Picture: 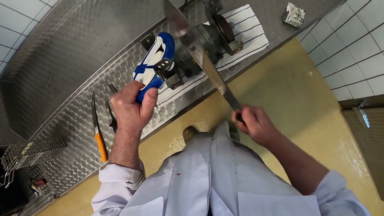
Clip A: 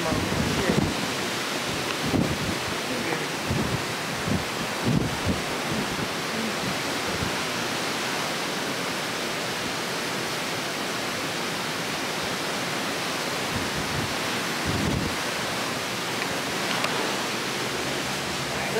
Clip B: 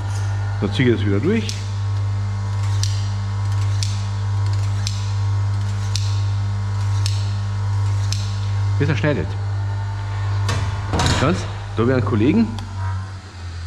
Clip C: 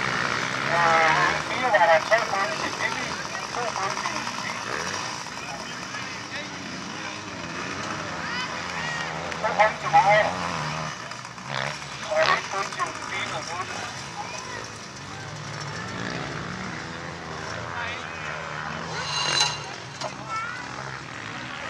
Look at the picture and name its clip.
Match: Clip B